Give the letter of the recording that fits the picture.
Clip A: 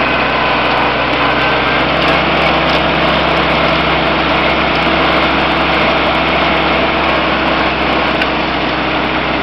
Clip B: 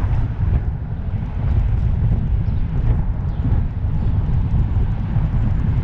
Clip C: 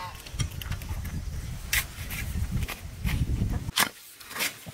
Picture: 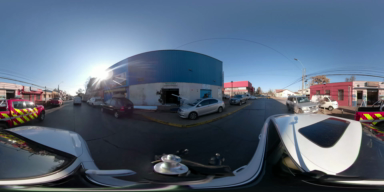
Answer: B